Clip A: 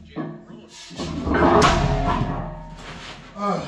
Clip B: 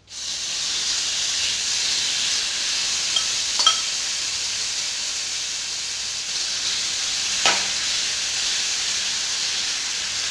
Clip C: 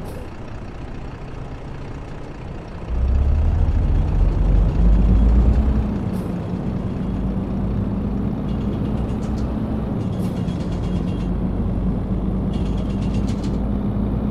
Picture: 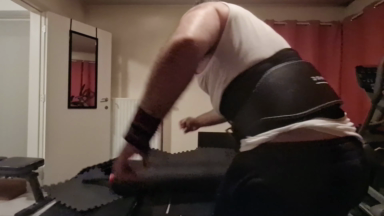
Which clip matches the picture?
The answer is A